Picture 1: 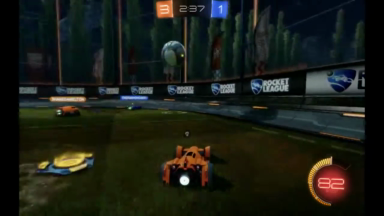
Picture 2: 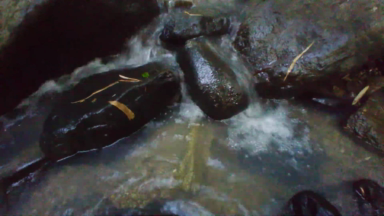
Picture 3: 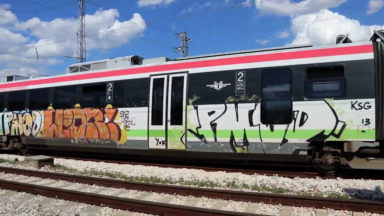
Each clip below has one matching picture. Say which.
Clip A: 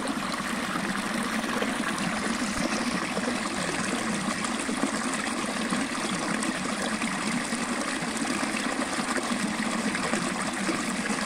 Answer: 2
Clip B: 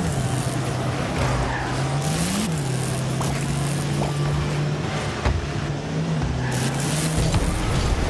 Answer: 1